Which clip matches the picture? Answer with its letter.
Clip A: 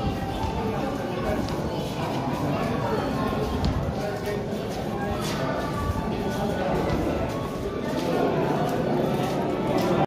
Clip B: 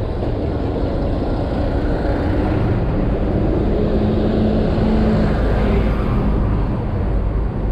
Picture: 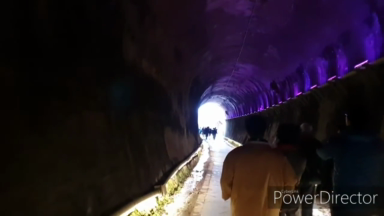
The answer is A